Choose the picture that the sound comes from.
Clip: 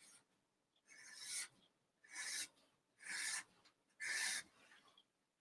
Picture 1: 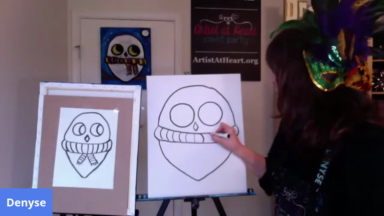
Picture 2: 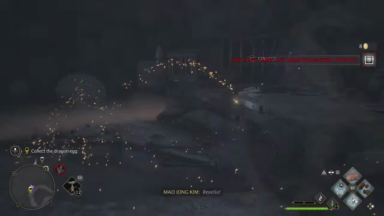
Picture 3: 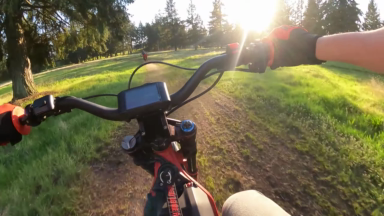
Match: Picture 1